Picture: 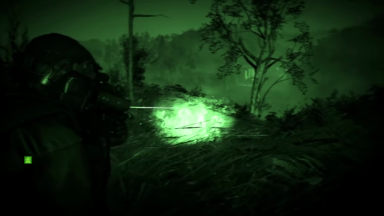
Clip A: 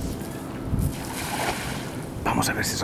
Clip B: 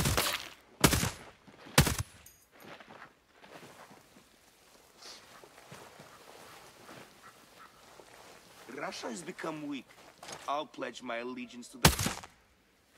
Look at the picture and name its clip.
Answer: B